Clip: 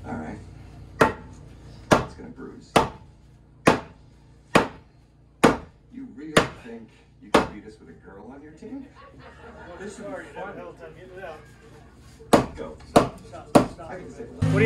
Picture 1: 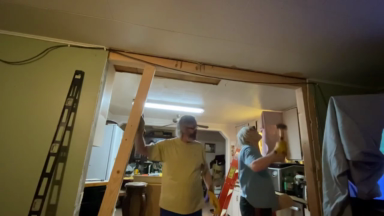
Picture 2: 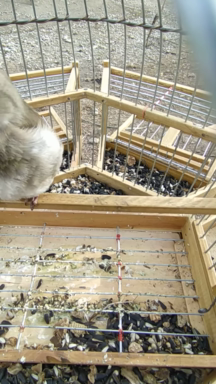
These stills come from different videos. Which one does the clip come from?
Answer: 1